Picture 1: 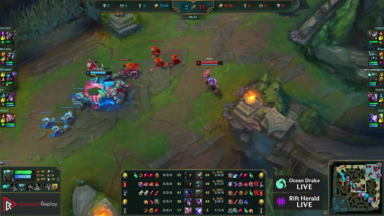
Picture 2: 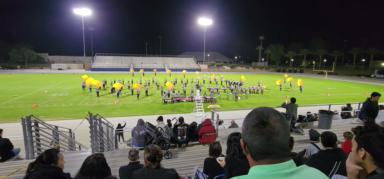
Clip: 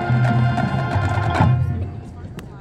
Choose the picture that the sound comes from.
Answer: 2